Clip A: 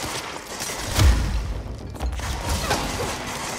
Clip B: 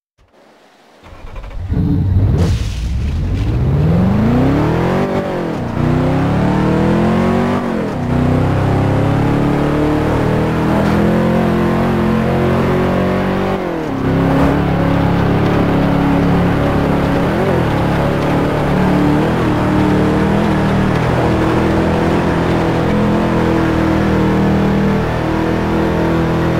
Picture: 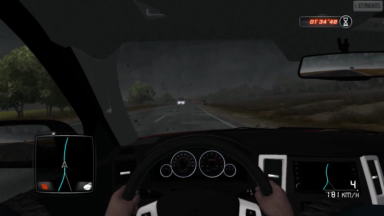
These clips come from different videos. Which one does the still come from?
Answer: B